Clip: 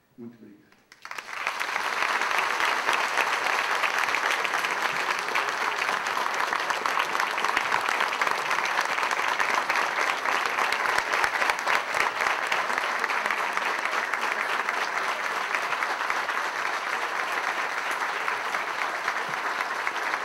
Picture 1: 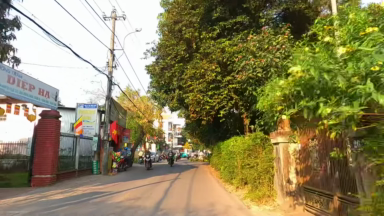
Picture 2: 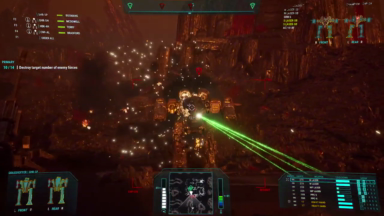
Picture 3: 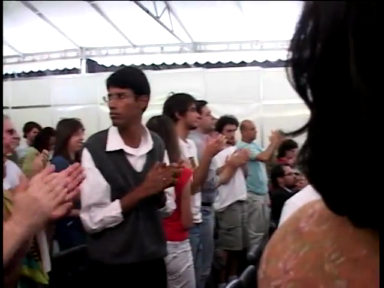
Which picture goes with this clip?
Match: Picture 3